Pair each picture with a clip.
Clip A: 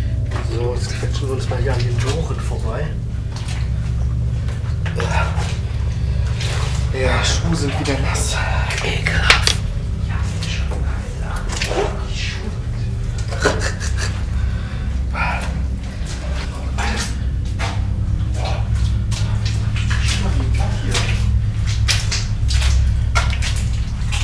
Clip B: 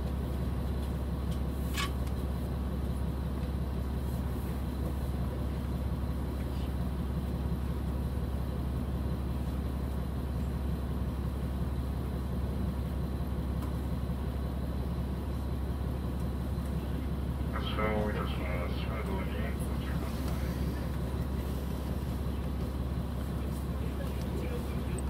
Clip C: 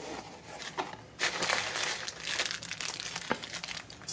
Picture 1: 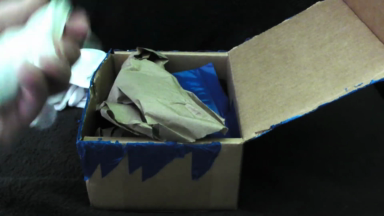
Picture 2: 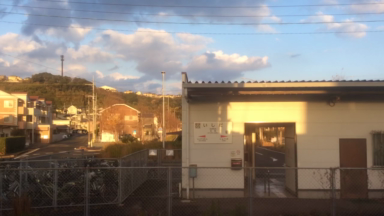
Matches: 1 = C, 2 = B